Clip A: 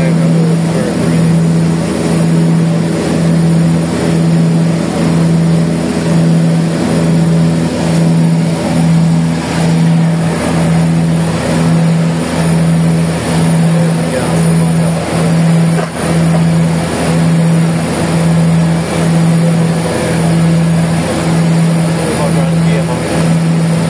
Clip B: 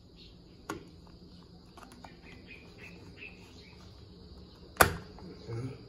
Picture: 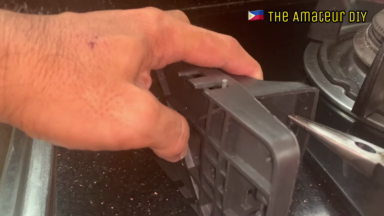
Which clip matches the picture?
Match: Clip B